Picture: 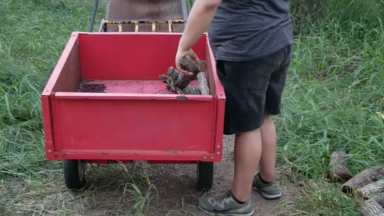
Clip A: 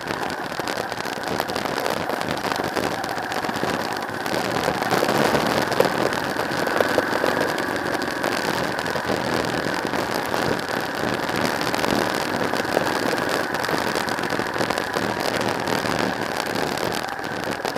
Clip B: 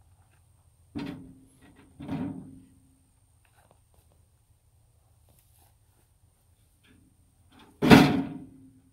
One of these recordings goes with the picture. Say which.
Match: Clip B